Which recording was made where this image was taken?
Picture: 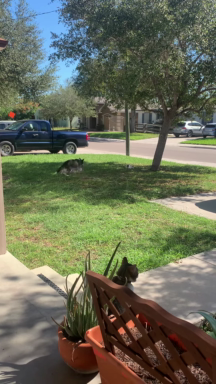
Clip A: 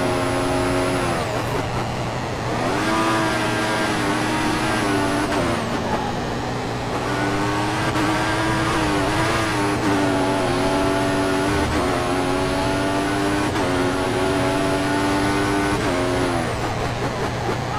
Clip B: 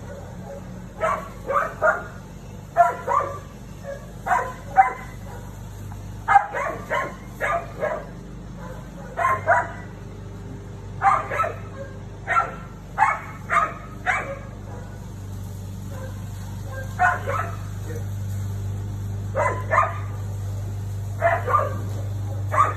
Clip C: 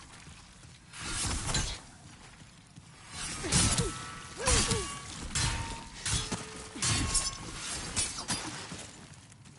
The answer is B